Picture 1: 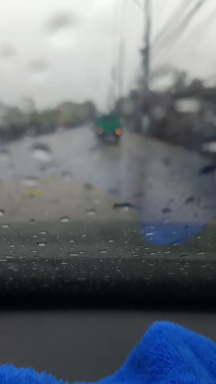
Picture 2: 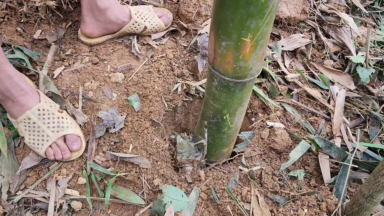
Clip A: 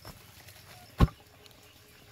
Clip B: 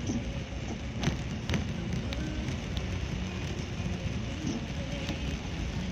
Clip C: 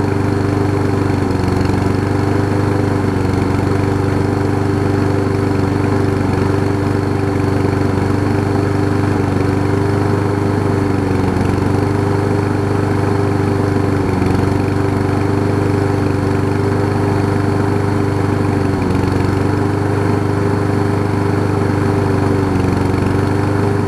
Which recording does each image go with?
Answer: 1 B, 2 A